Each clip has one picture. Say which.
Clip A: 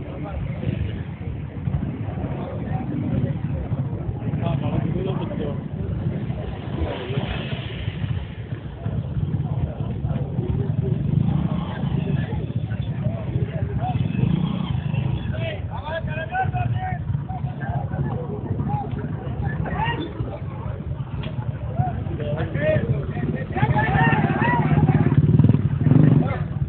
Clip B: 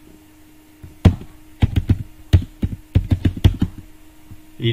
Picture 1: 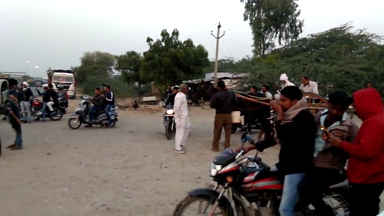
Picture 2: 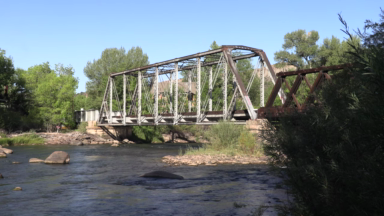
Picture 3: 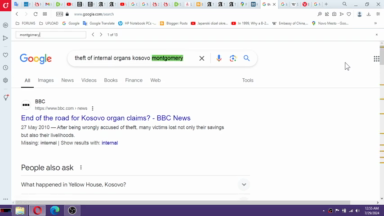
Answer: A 1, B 3